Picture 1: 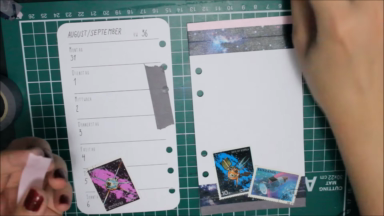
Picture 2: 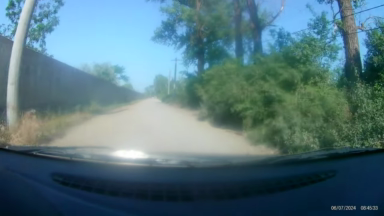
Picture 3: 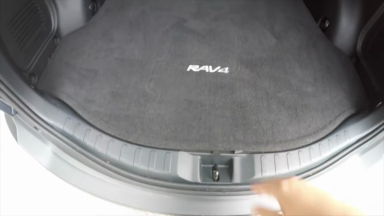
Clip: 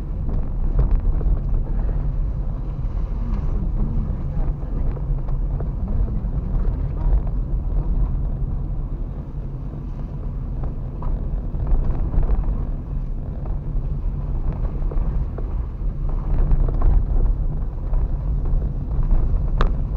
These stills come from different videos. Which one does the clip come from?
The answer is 2